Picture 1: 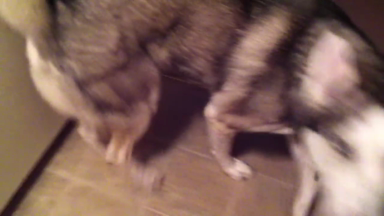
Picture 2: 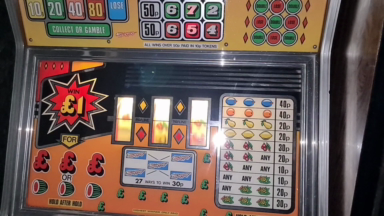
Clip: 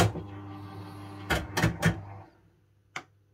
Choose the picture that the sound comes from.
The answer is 2